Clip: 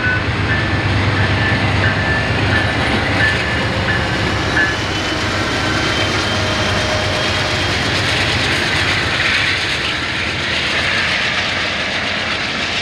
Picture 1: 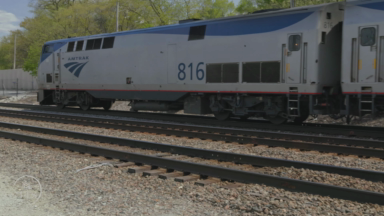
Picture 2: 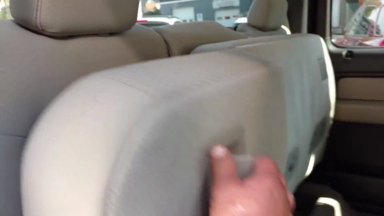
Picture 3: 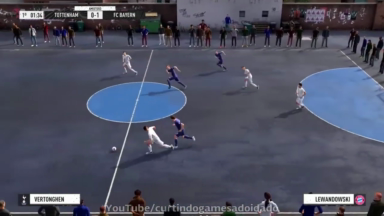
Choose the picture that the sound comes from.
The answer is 1